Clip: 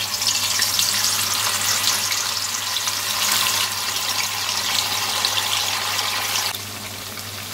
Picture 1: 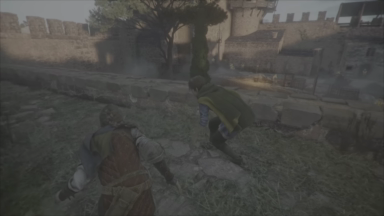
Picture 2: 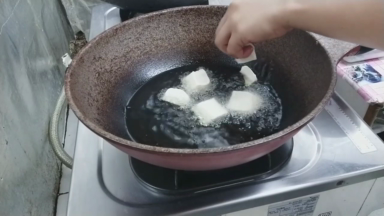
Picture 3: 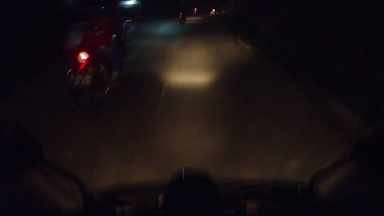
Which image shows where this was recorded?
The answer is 2